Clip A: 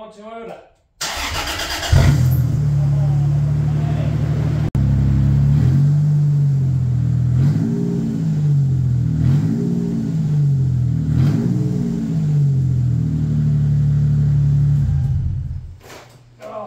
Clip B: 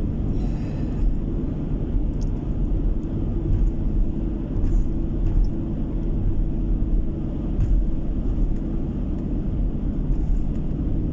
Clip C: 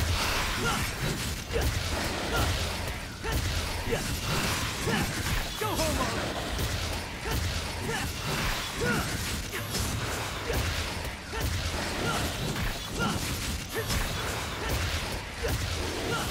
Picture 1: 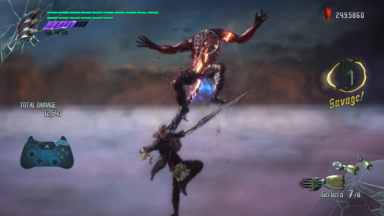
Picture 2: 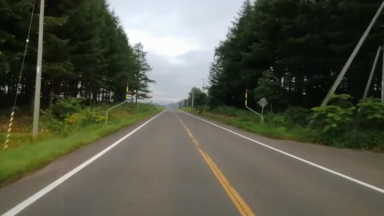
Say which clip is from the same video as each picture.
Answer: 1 C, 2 B